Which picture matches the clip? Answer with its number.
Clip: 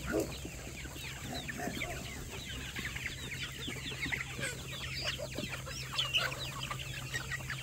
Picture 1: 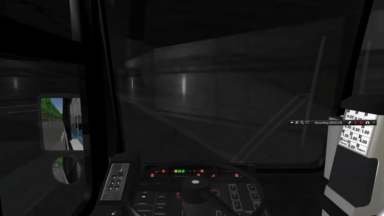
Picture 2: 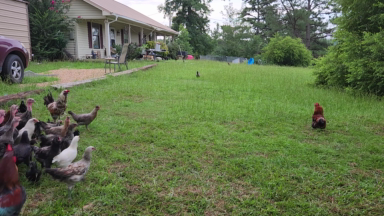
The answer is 2